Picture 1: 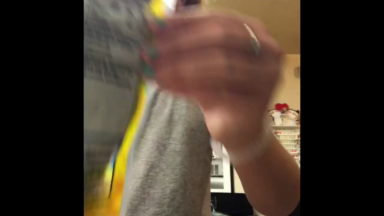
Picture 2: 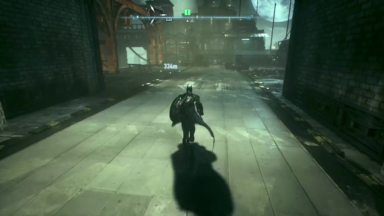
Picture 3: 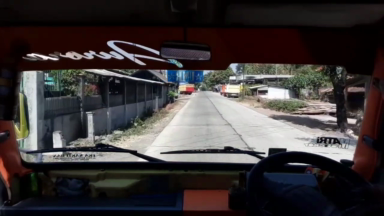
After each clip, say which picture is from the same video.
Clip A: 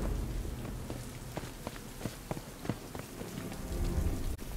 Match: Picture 2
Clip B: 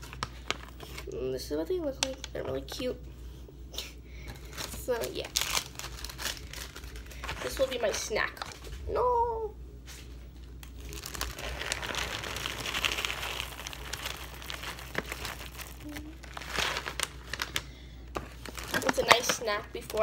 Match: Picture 1